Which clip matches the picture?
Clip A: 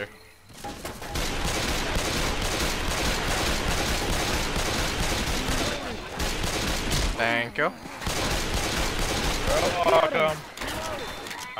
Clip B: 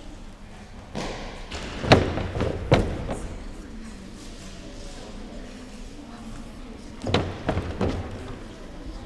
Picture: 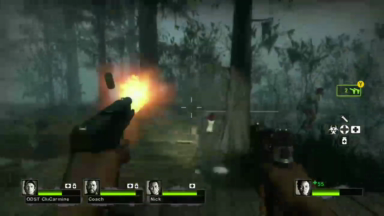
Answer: A